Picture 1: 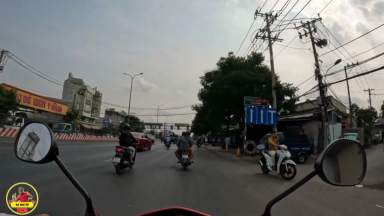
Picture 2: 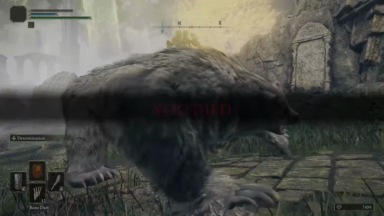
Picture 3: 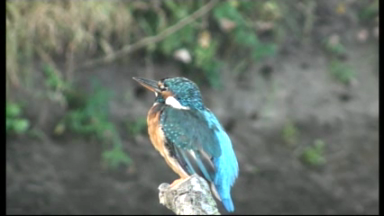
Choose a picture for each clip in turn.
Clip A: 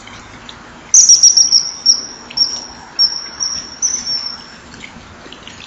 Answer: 3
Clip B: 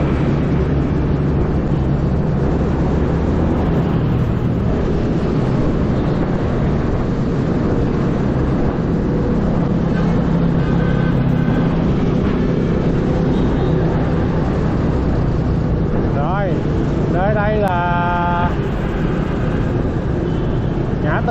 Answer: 1